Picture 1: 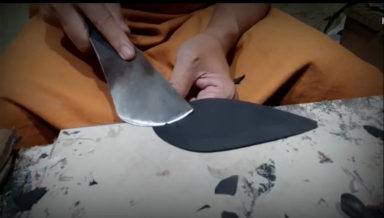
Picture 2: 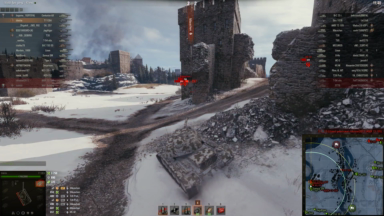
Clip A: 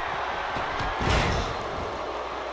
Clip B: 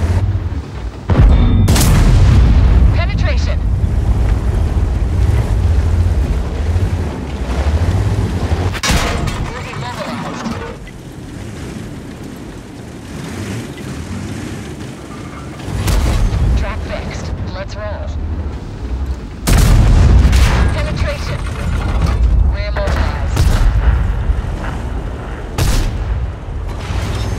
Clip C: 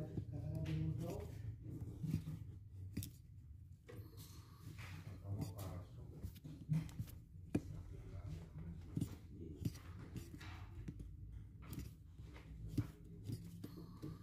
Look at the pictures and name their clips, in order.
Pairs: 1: C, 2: B